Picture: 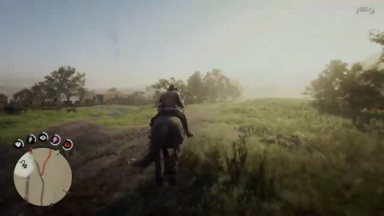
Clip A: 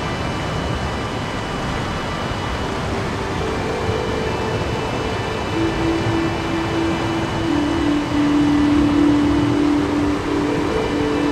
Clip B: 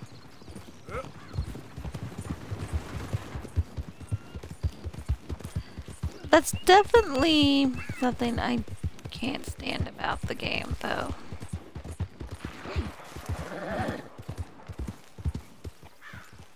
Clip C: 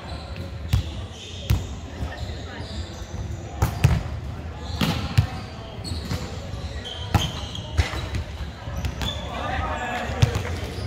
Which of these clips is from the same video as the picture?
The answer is B